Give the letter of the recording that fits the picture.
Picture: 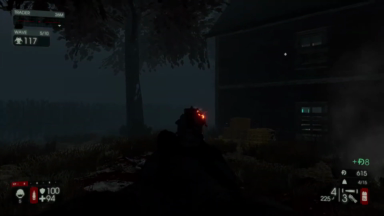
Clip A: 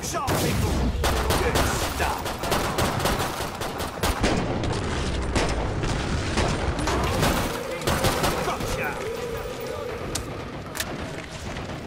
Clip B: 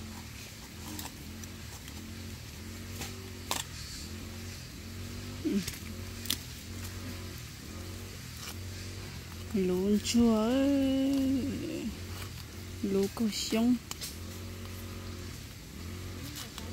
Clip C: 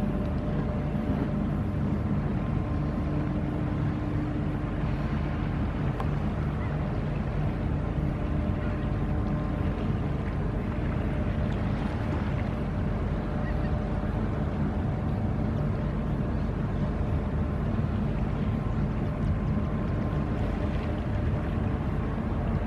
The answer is A